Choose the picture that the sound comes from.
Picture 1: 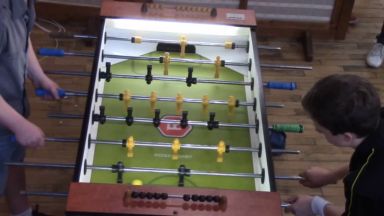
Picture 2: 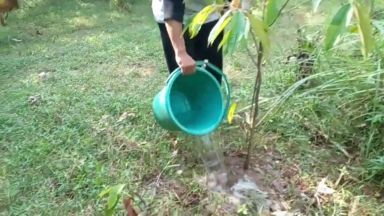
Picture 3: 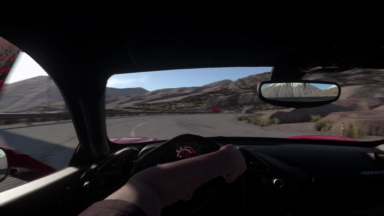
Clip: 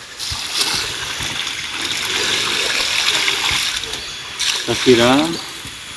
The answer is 2